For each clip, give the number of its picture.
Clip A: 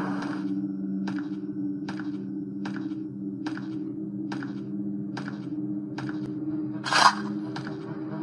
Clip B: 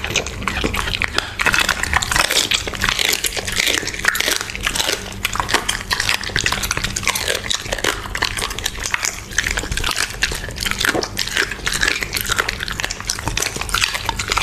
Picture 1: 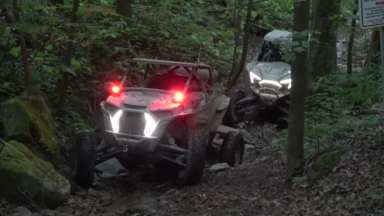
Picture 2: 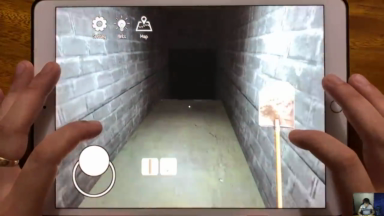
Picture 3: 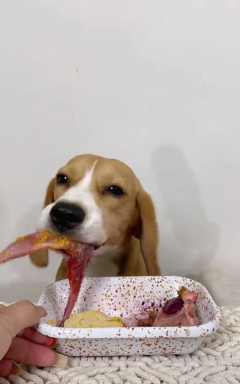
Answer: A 2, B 3